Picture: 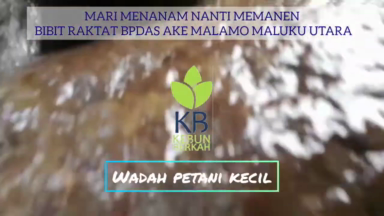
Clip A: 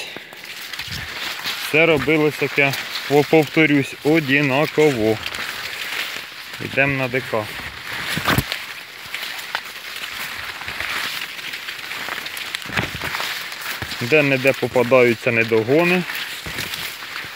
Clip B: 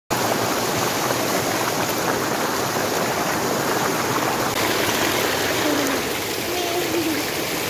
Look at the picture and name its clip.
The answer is B